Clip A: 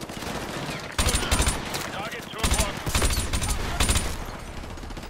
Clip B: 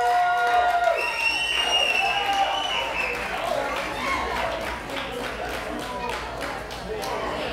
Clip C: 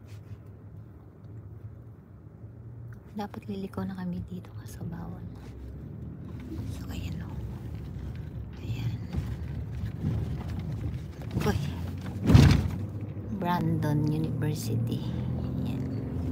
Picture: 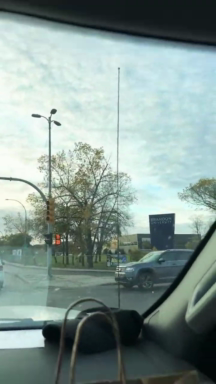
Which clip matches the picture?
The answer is C